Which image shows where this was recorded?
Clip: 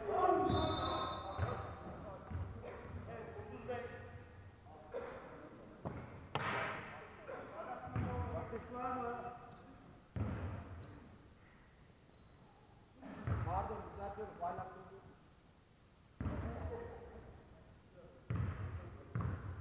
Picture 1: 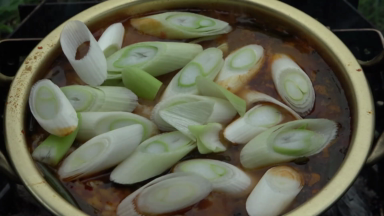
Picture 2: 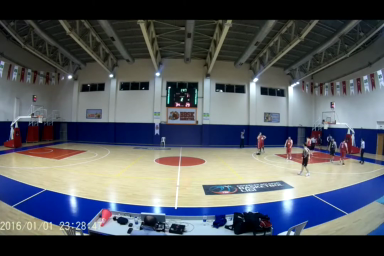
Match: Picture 2